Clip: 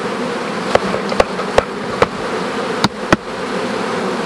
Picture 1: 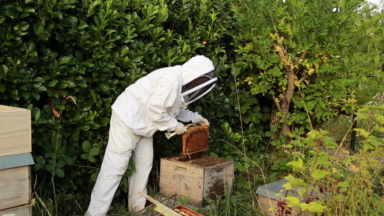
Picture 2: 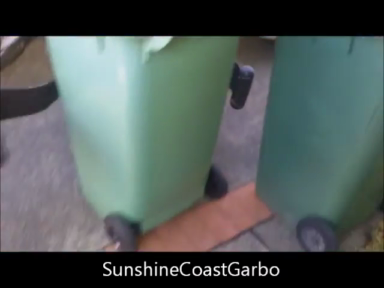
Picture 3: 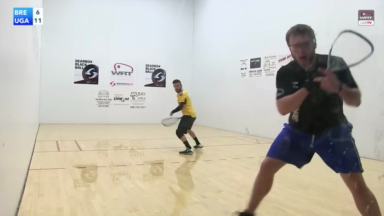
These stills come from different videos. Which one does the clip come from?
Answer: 1